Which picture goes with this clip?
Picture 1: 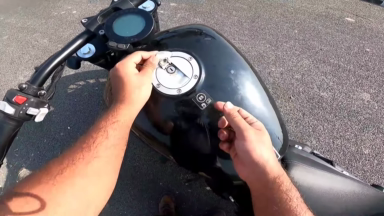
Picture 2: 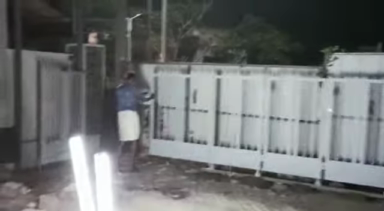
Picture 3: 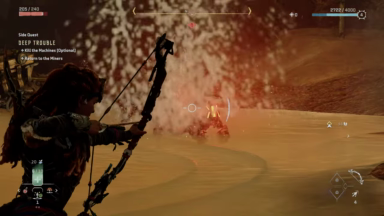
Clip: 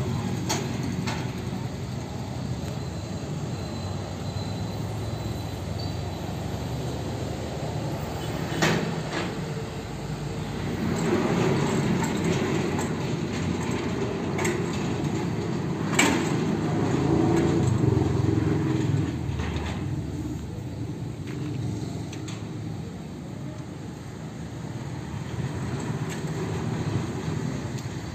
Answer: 2